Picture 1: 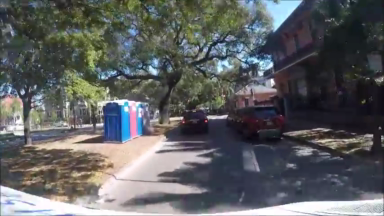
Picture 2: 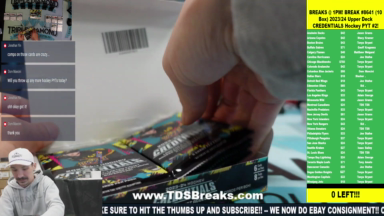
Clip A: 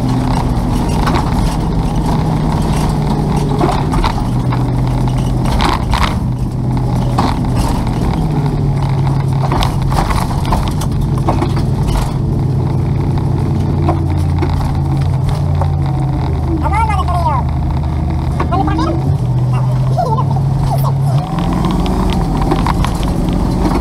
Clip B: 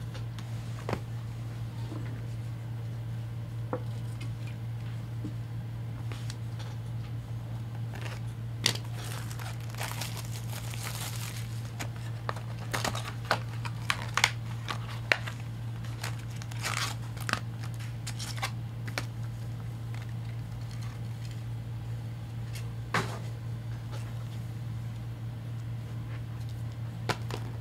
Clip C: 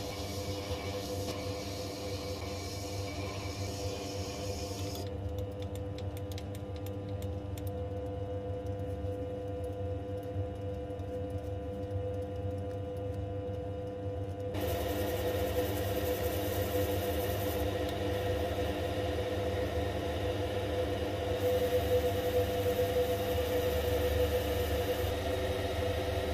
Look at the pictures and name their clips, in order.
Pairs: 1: A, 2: B